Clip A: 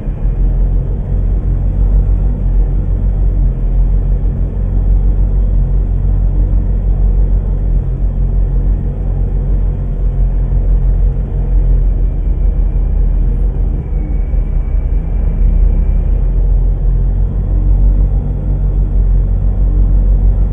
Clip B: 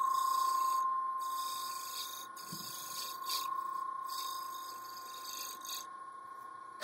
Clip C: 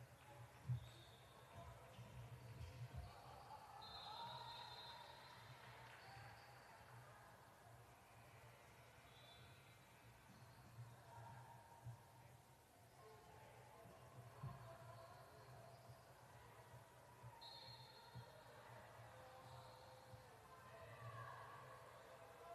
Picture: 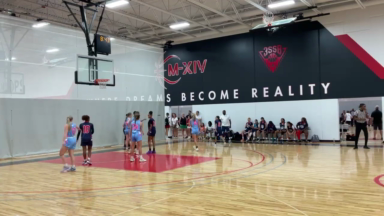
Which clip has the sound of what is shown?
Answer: C